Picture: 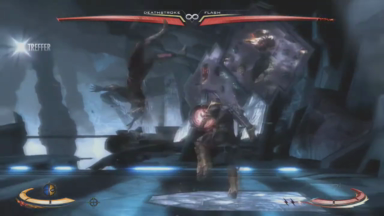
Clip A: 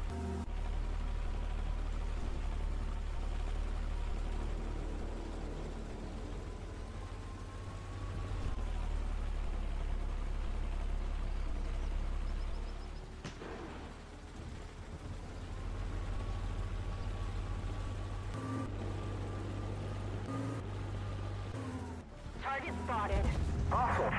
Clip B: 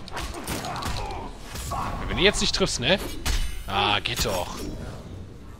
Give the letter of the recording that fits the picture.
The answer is B